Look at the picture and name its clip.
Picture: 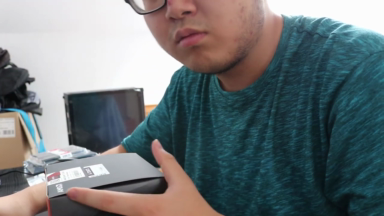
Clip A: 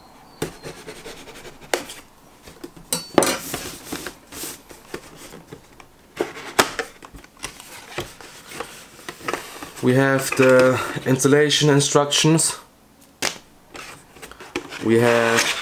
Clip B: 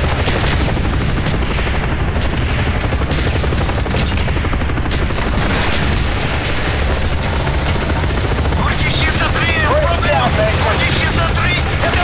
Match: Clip A